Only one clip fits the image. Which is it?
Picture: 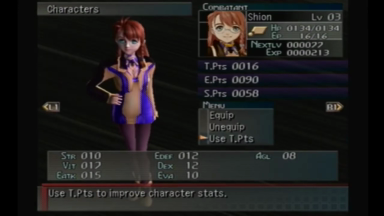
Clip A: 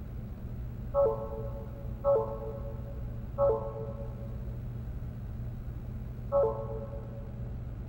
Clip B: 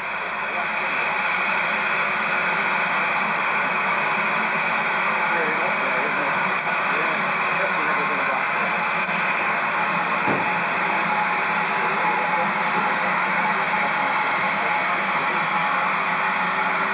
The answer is A